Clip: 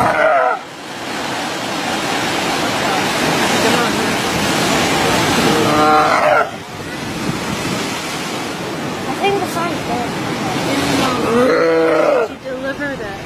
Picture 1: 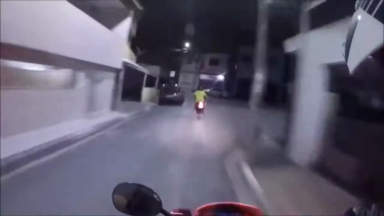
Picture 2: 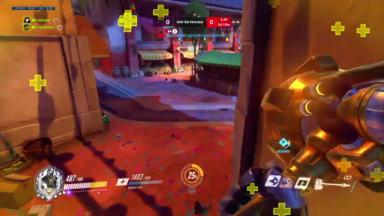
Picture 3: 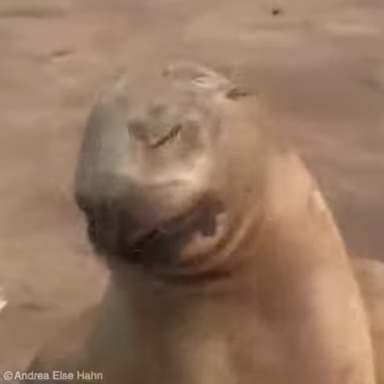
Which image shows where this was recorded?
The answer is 3